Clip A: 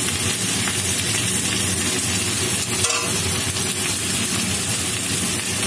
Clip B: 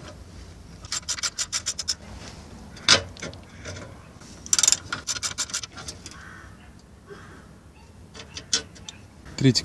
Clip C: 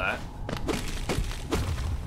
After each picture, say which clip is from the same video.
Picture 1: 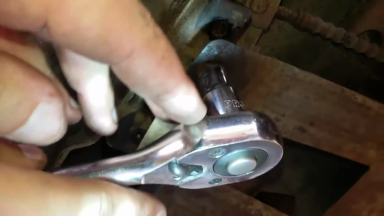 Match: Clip B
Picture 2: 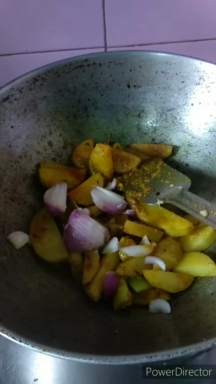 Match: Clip A